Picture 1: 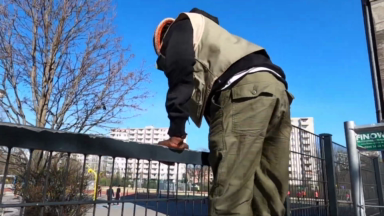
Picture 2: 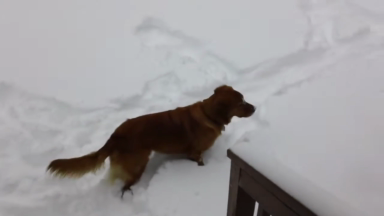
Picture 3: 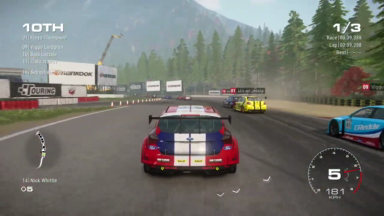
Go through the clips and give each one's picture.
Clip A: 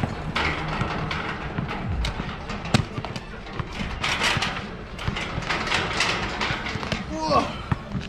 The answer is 1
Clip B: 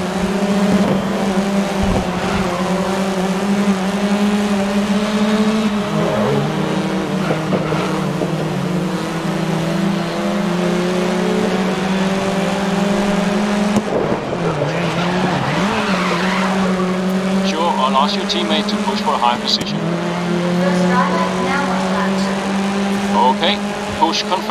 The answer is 3